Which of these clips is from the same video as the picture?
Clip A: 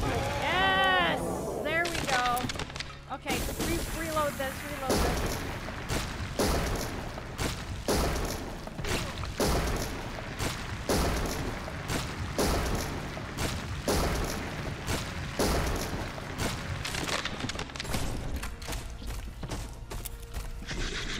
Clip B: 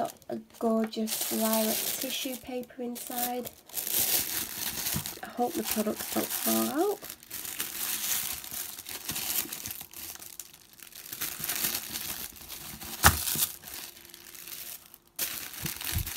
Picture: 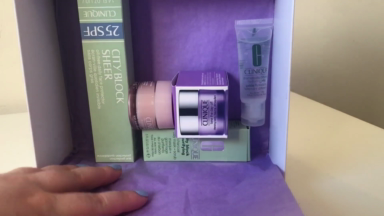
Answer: B